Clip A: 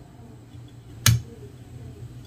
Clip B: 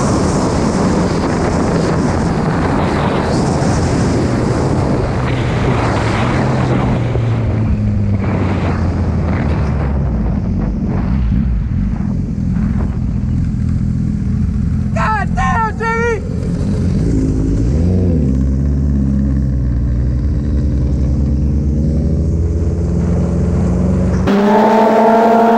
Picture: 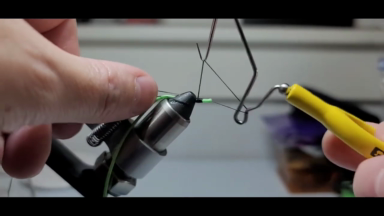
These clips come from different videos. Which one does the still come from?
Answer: A